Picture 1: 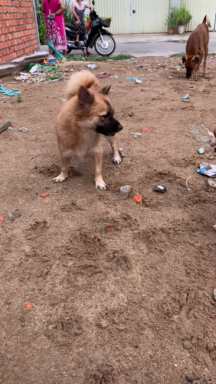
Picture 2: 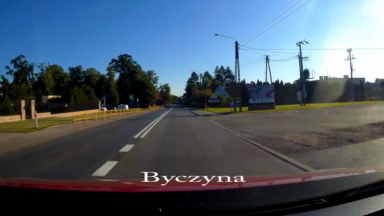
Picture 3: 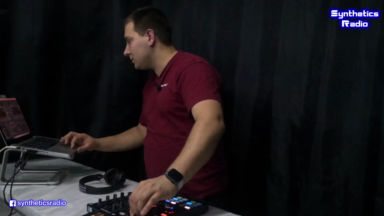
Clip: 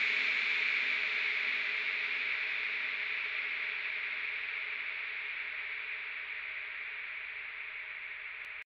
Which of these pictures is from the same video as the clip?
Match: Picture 3